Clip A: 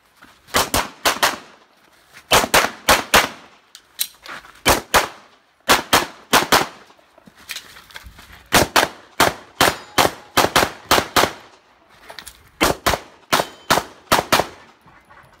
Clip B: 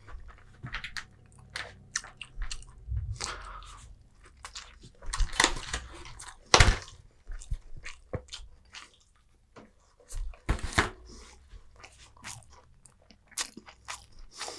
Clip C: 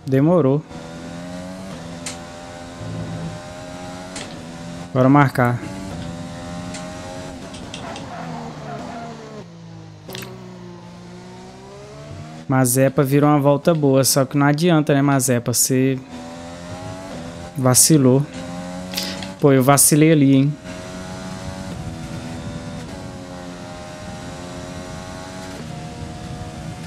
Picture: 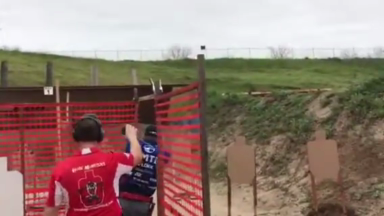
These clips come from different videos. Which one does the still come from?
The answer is A